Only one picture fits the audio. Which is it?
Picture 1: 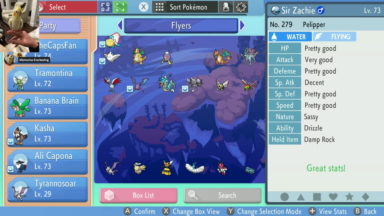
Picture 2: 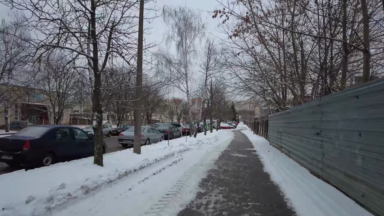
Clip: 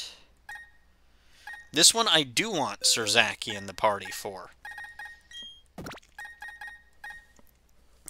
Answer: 1